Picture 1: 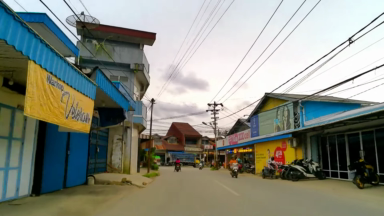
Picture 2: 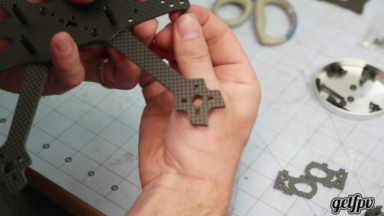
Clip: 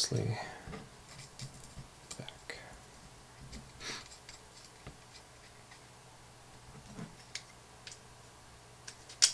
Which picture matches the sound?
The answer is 2